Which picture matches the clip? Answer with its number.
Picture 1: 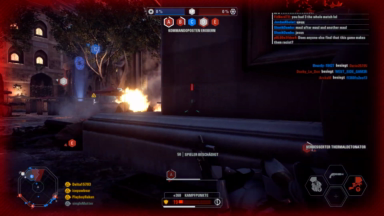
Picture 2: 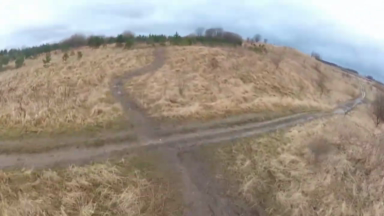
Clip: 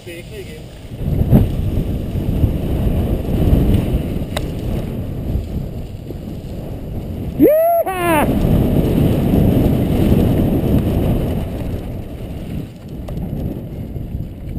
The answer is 2